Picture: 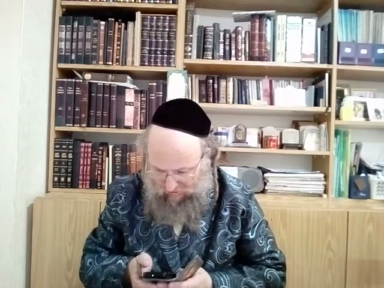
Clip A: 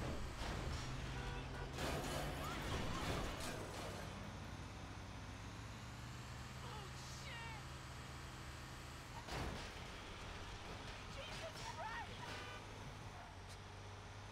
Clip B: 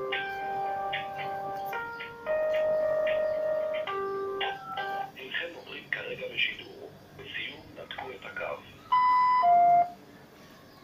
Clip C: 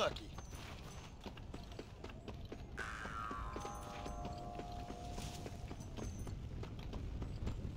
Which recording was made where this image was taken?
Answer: B